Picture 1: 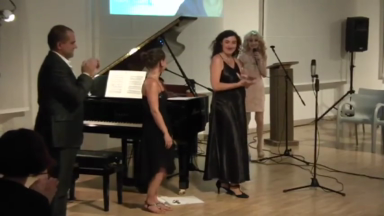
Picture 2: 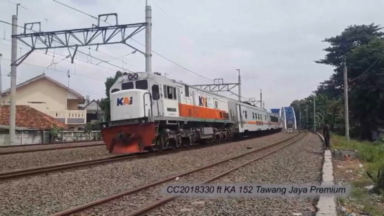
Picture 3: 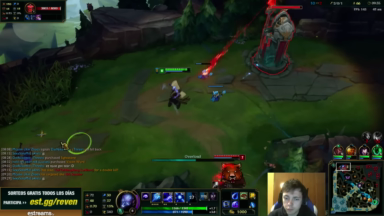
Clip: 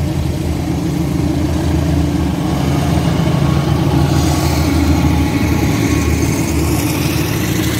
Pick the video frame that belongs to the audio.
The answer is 2